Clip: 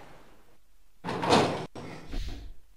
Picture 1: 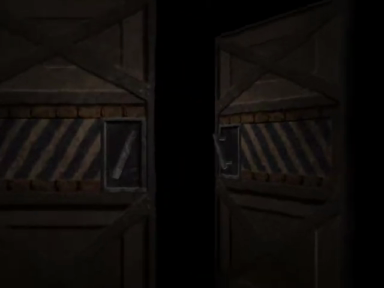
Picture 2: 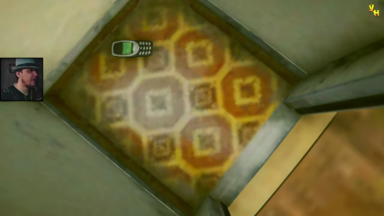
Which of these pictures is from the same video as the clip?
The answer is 1